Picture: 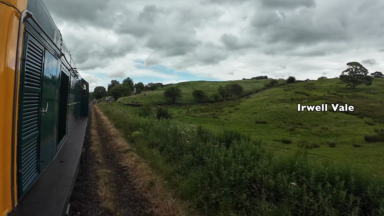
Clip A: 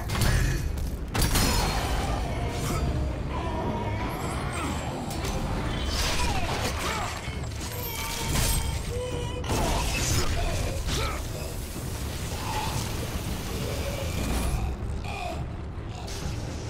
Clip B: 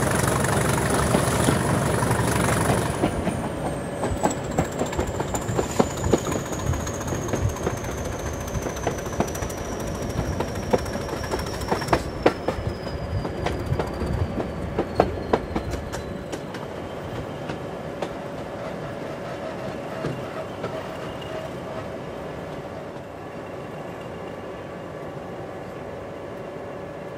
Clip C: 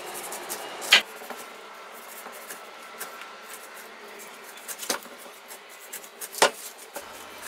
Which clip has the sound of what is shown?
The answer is B